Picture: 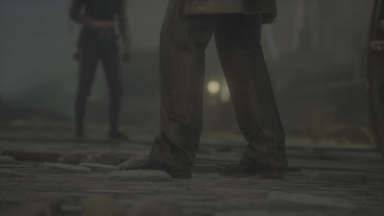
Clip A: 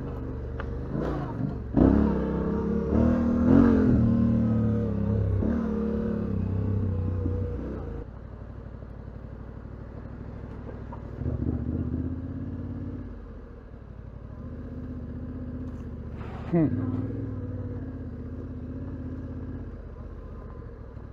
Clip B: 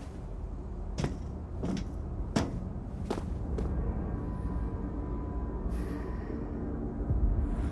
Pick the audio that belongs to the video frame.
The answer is B